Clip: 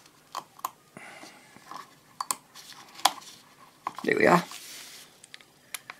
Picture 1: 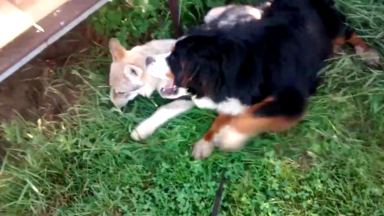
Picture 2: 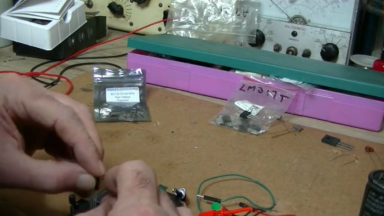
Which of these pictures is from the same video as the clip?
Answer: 2